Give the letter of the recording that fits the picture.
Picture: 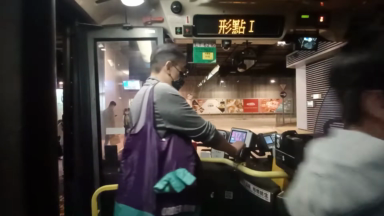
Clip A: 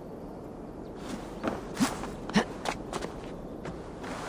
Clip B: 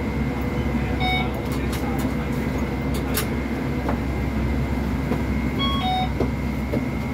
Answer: B